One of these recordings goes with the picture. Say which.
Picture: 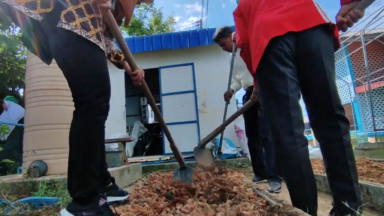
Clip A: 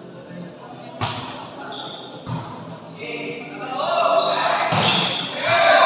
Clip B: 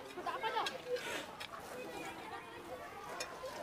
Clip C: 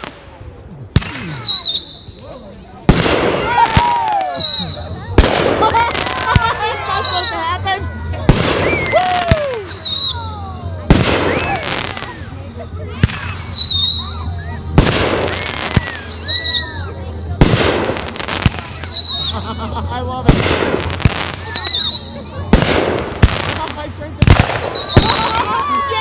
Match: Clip B